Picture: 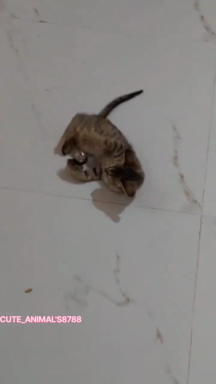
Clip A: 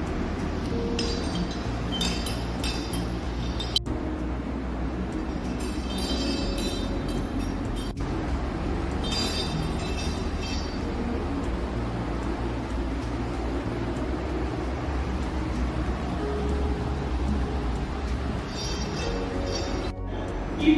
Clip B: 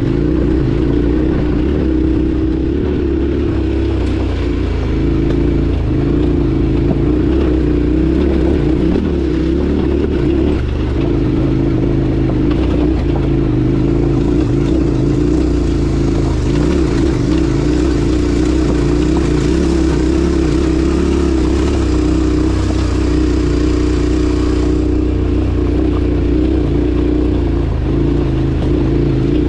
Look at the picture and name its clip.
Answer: A